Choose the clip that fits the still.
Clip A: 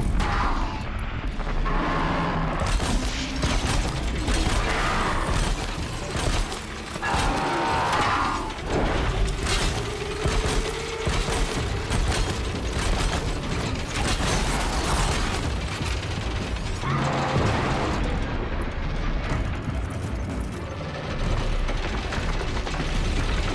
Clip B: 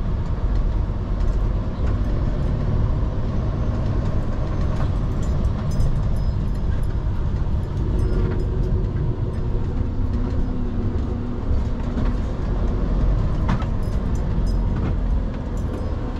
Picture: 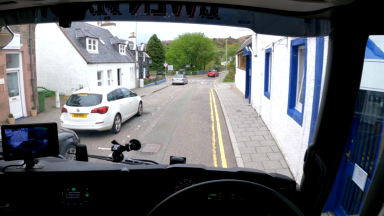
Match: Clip B